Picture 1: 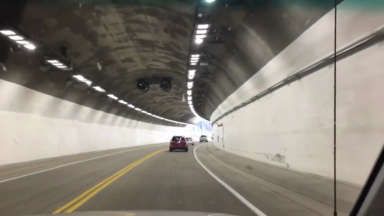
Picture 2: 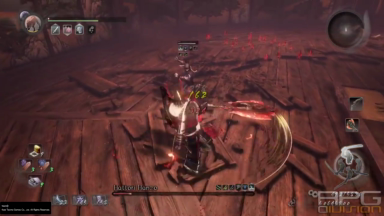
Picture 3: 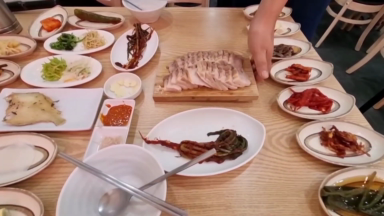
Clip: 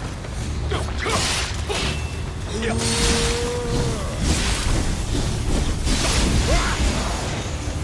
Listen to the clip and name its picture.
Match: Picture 2